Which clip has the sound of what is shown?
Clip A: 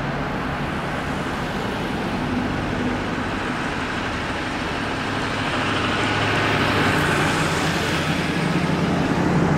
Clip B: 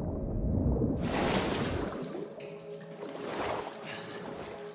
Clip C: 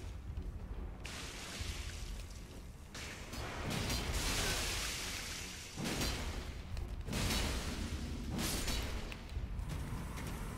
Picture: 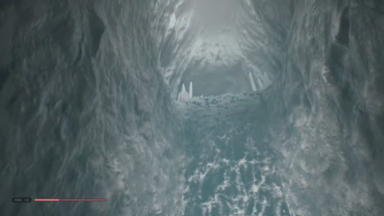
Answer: B